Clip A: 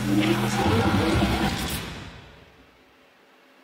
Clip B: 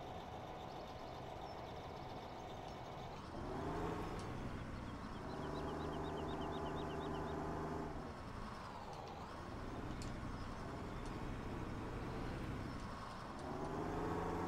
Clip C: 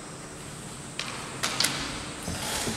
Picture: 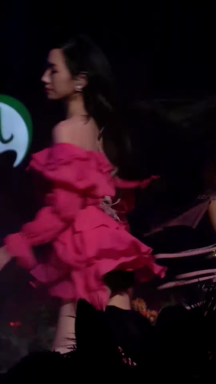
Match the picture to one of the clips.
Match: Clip A